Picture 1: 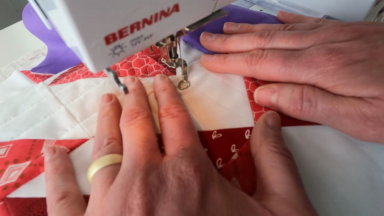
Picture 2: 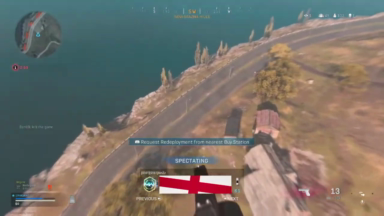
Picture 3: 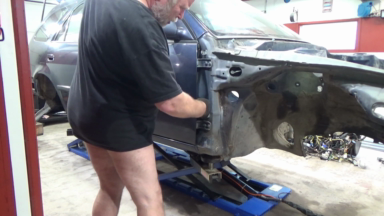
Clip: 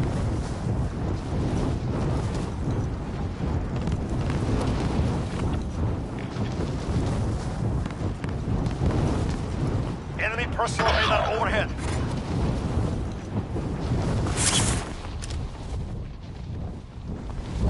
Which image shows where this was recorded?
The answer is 2